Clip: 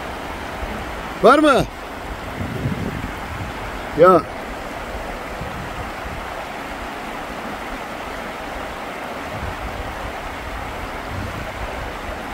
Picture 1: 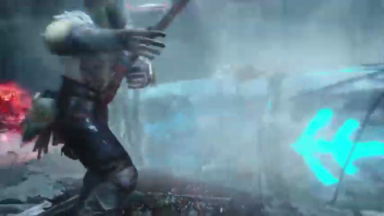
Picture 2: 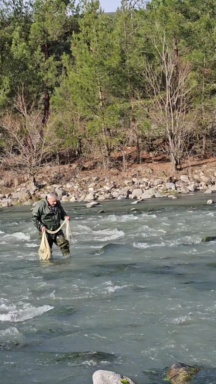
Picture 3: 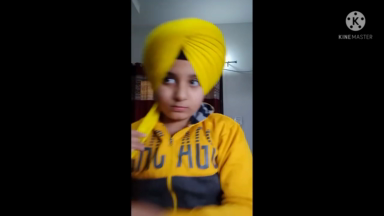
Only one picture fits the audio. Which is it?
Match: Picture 2